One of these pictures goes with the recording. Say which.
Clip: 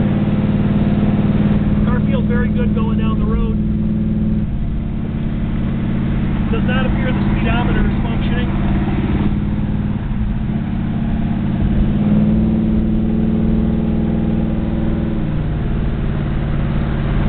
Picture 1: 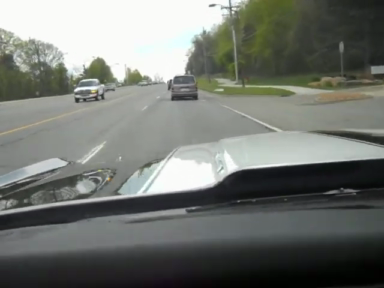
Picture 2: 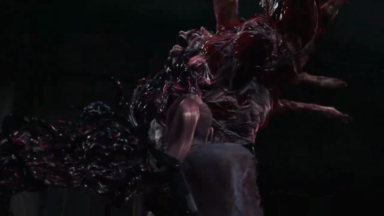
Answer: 1